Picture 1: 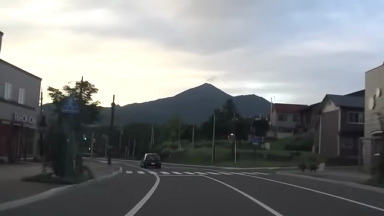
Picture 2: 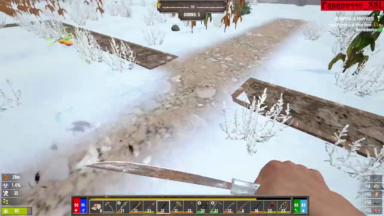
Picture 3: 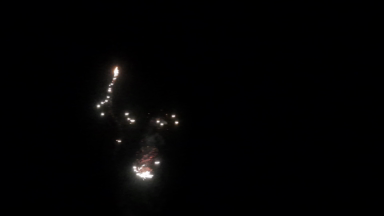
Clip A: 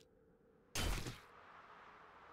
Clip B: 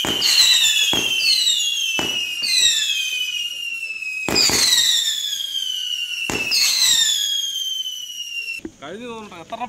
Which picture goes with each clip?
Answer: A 2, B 3